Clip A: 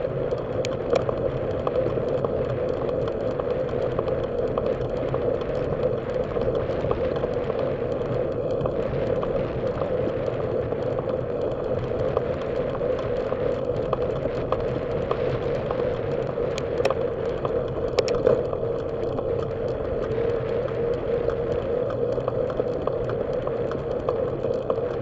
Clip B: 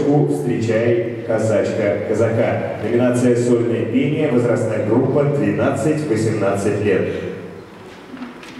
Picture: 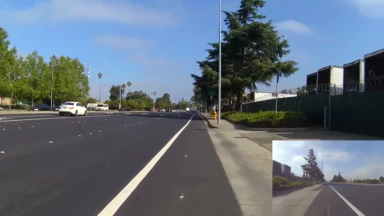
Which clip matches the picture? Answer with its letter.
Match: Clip A